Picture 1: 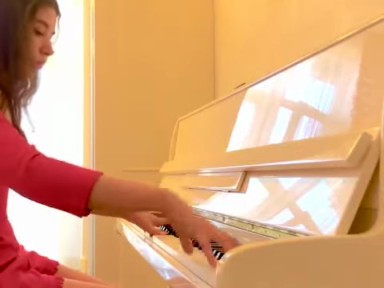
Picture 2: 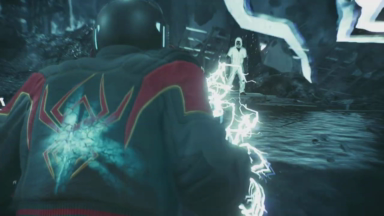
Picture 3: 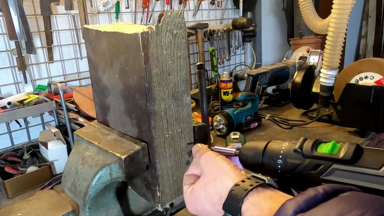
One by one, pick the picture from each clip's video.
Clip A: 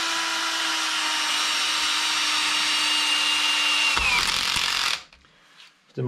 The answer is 3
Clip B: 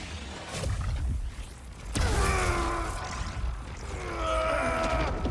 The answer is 2